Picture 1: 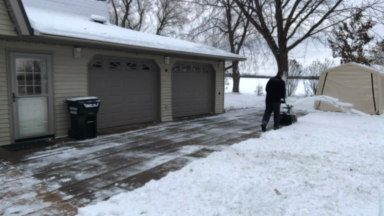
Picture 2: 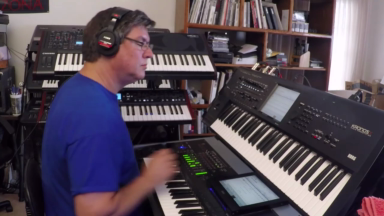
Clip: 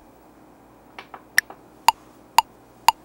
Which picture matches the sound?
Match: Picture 2